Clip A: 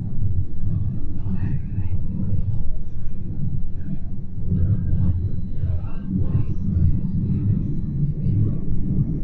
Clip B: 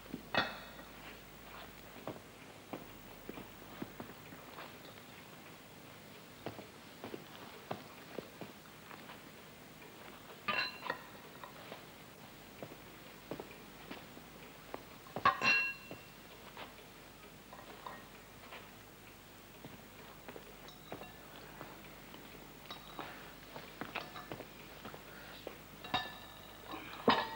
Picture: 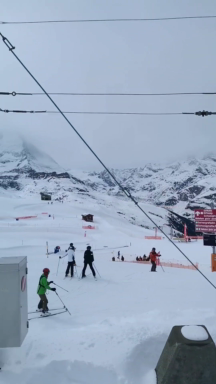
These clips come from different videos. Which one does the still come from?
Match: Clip A